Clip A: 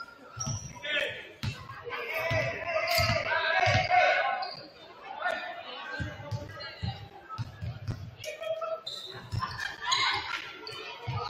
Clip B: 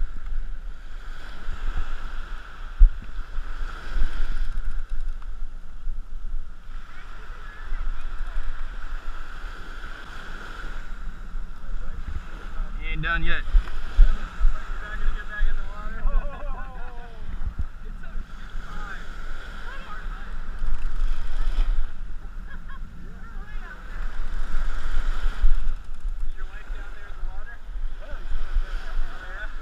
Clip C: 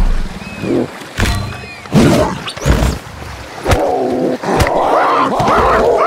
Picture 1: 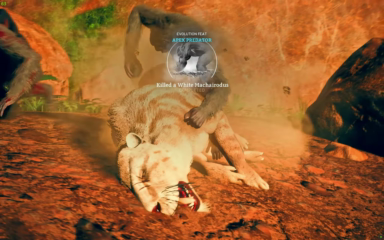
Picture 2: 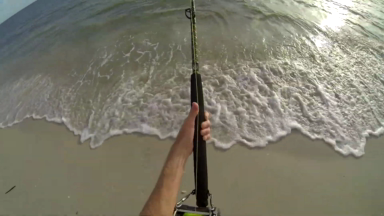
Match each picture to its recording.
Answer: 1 C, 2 B